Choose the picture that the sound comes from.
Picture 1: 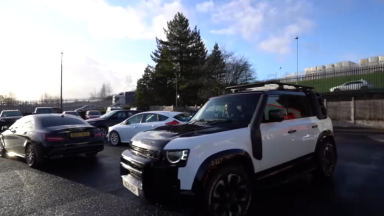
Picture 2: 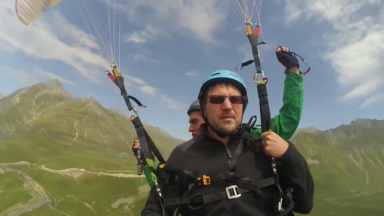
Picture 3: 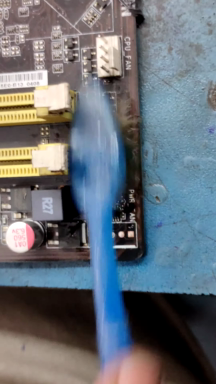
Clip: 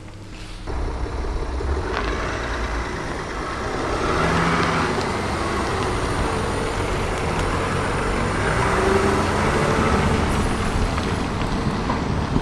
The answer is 1